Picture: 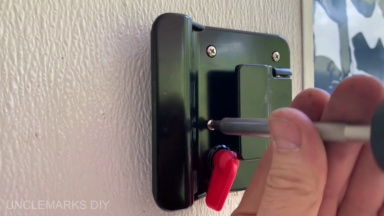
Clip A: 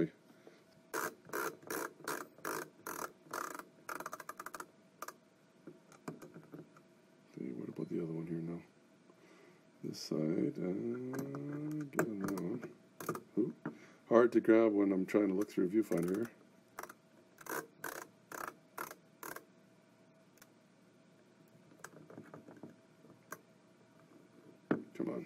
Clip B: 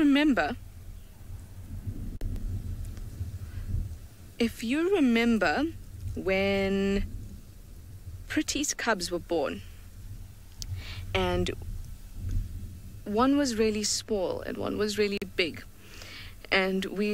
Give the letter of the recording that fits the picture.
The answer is A